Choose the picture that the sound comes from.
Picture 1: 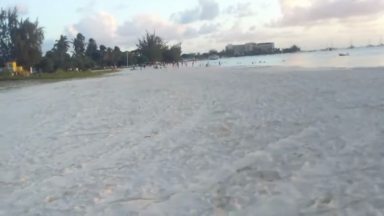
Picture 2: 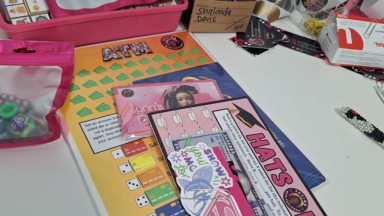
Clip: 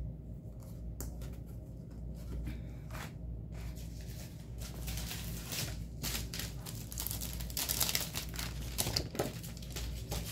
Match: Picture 2